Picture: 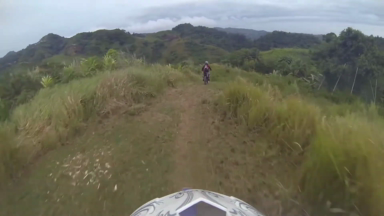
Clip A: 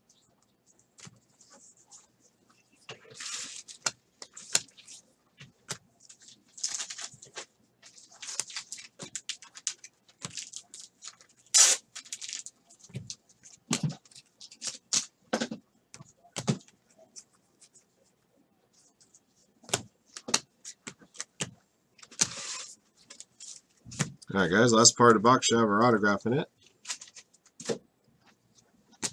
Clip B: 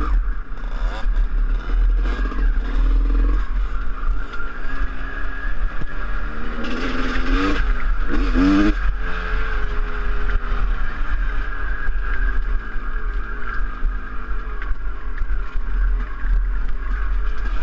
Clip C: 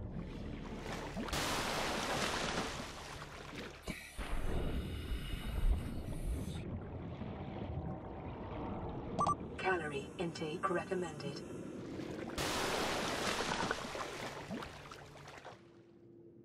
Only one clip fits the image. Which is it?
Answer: B